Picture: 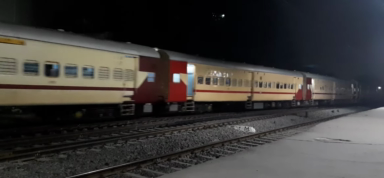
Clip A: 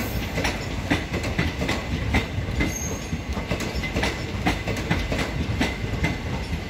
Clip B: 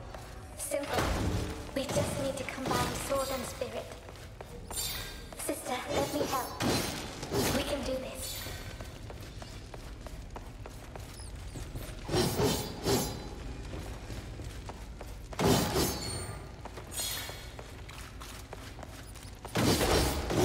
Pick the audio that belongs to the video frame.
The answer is A